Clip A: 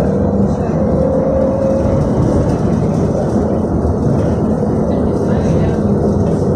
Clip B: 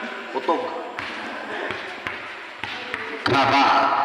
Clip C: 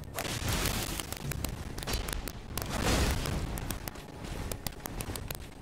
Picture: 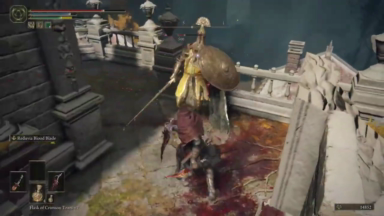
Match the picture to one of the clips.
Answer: C